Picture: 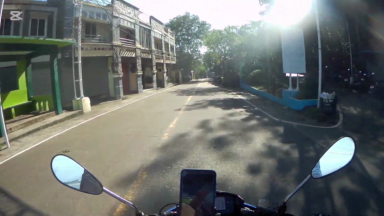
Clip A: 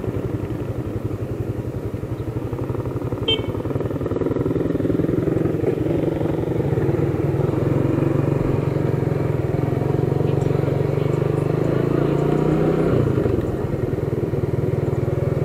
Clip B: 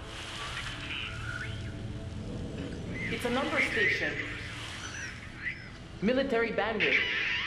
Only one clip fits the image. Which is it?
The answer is A